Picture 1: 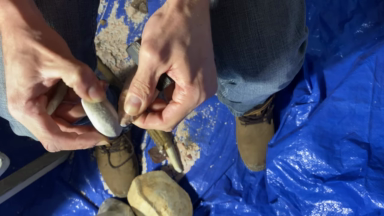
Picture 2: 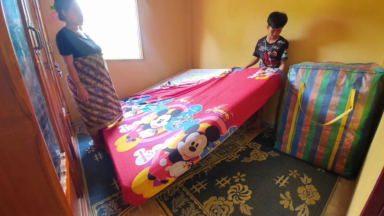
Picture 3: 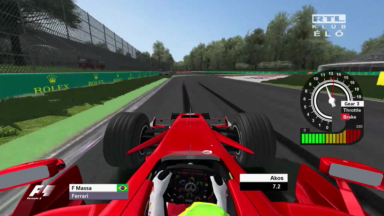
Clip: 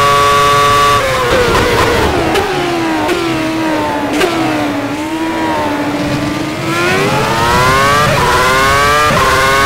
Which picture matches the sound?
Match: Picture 3